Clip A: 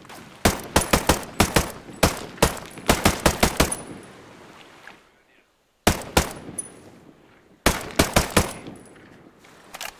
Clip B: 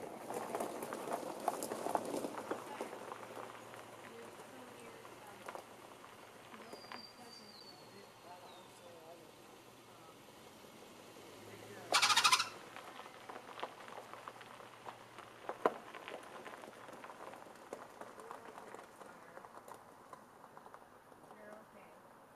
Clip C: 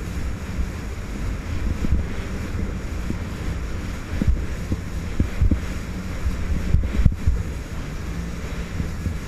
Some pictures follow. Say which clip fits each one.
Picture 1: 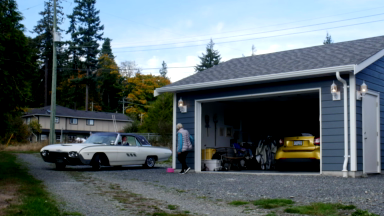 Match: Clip B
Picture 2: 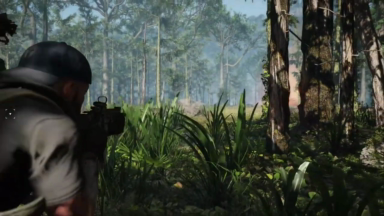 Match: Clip A